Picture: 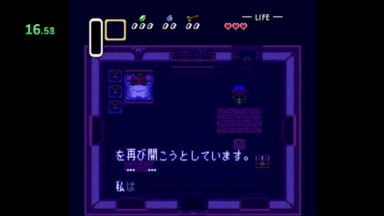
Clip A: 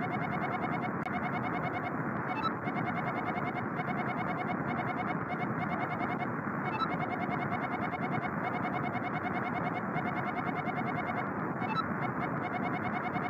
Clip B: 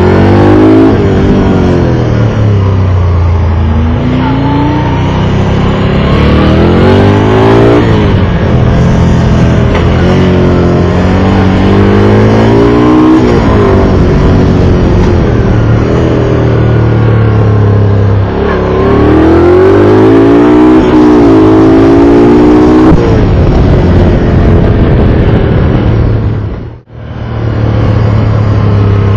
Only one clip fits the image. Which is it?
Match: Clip A